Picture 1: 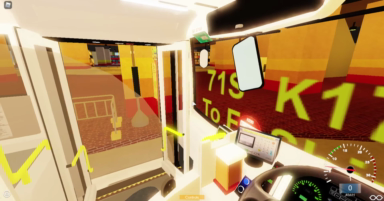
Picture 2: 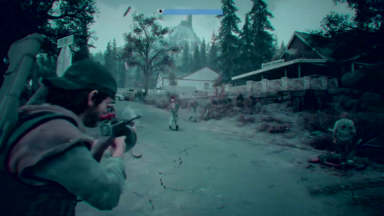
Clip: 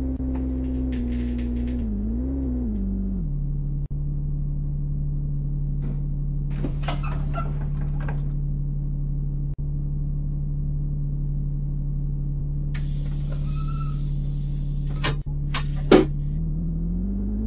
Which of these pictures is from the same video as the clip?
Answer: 1